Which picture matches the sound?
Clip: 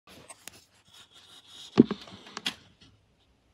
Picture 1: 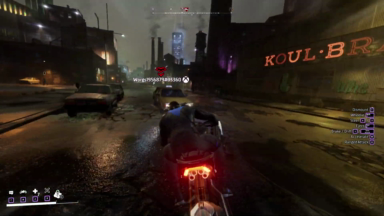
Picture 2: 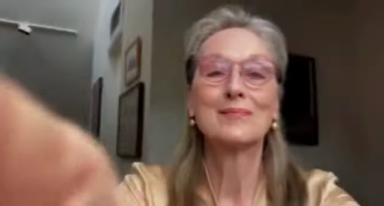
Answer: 2